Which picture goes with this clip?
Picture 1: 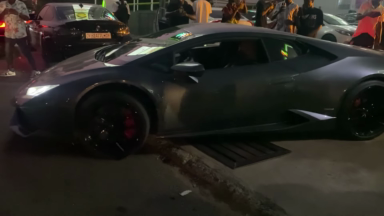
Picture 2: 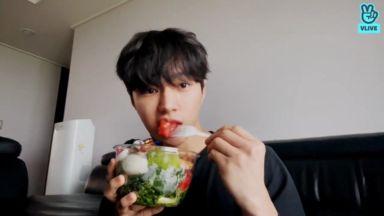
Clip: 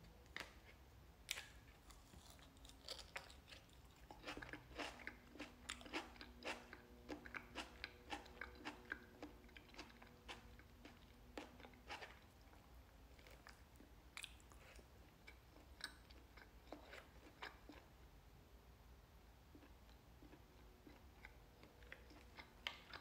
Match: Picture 2